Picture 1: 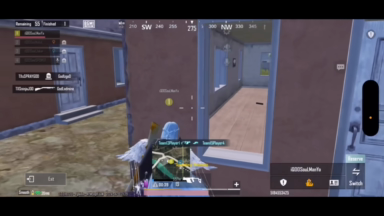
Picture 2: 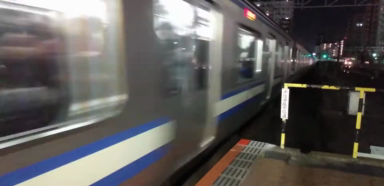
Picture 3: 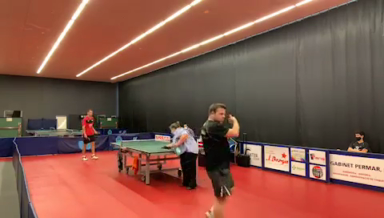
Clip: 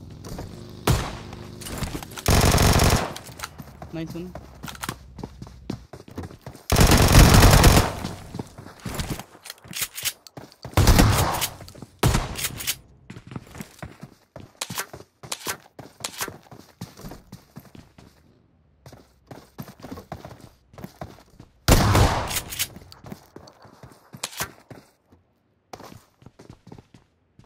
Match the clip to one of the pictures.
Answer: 1